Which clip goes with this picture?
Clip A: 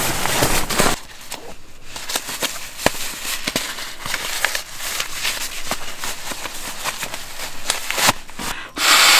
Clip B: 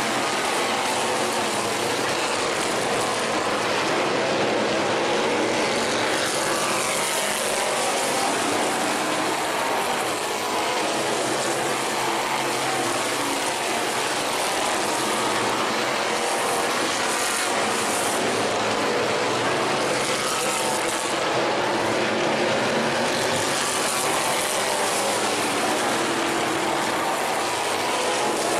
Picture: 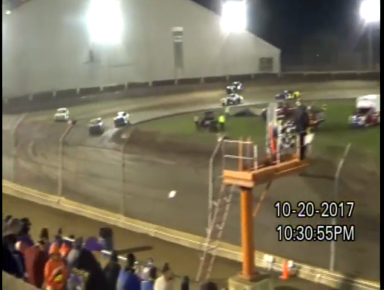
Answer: B